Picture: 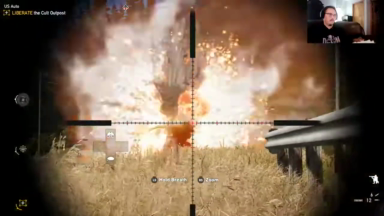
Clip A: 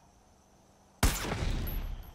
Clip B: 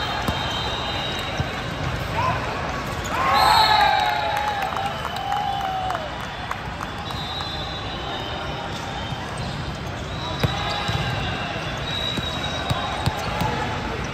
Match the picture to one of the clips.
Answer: A